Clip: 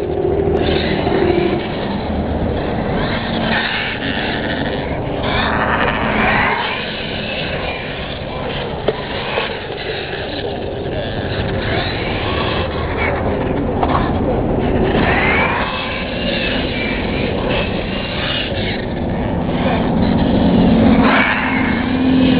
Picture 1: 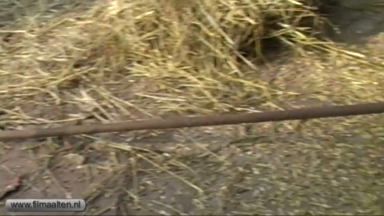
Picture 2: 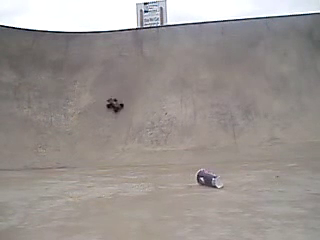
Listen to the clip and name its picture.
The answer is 2